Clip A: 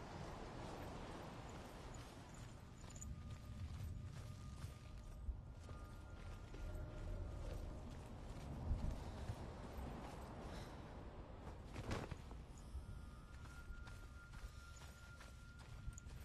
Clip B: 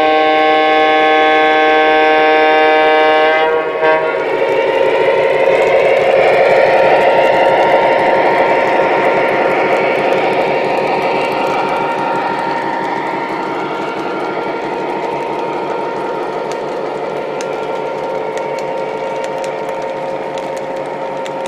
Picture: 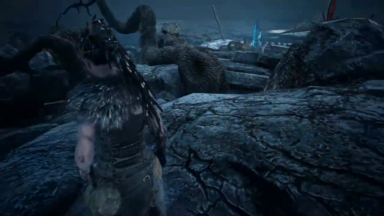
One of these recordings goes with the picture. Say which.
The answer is A